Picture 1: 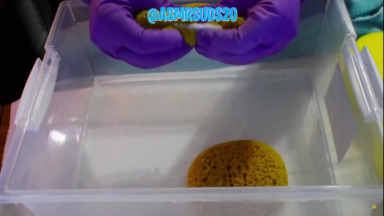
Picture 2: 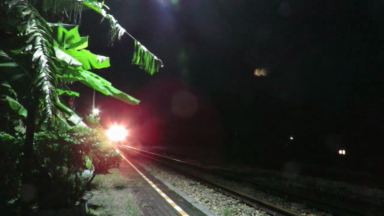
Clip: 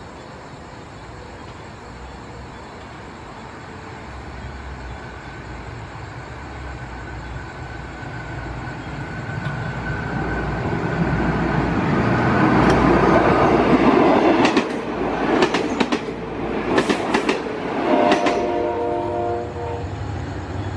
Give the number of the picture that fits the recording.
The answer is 2